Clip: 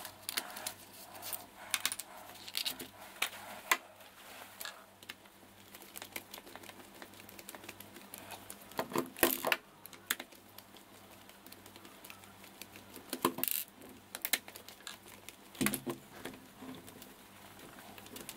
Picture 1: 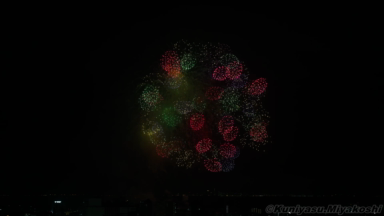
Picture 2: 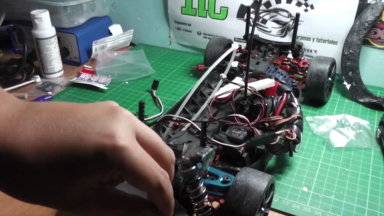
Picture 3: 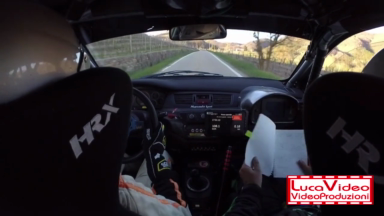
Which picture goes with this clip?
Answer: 2